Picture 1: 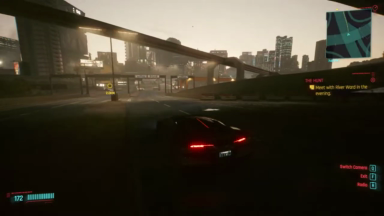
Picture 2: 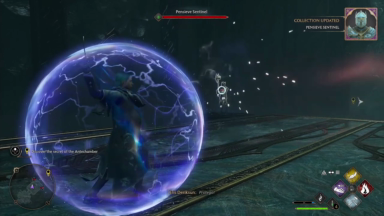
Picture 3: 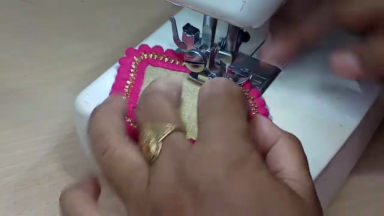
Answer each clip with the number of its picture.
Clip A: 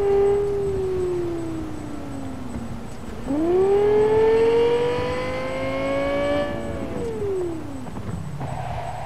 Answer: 1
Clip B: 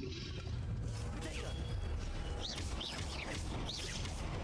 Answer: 2